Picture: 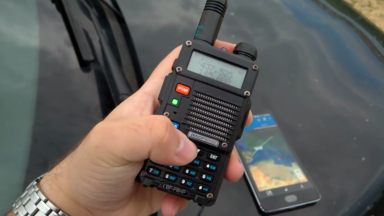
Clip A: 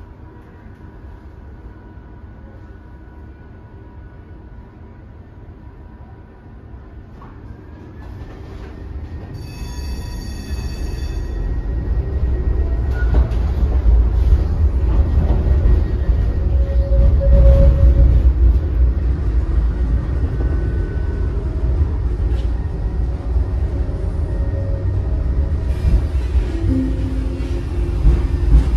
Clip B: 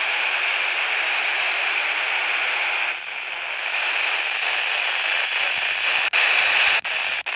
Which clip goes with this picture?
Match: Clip B